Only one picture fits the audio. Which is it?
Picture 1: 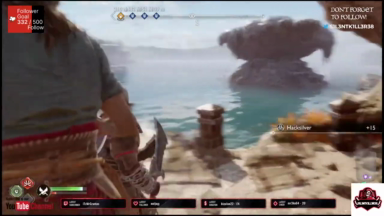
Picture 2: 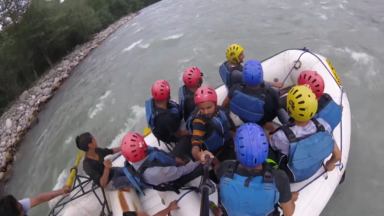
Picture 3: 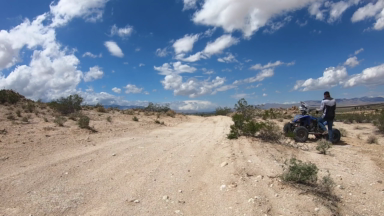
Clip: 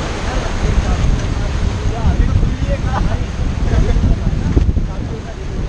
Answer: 2